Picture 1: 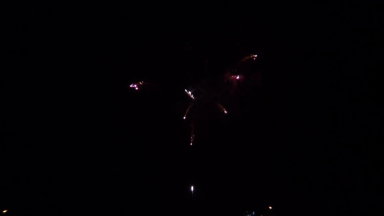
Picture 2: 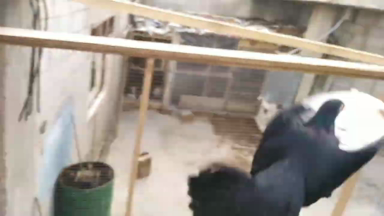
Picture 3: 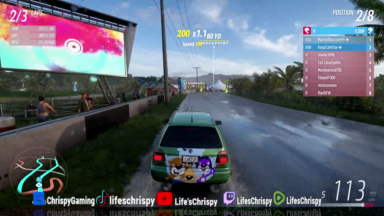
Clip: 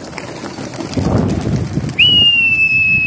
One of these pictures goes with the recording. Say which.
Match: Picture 2